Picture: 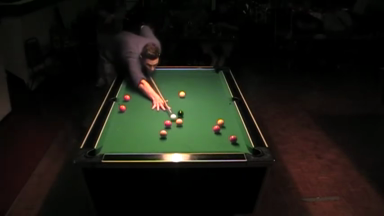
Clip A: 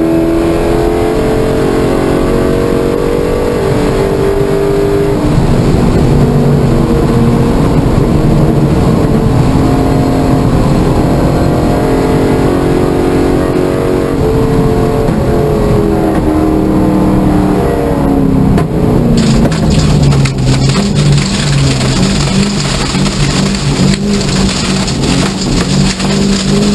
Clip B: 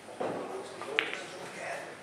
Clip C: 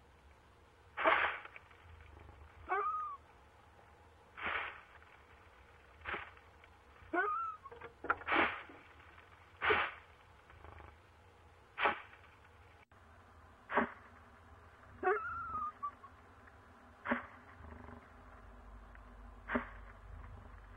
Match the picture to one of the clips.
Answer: B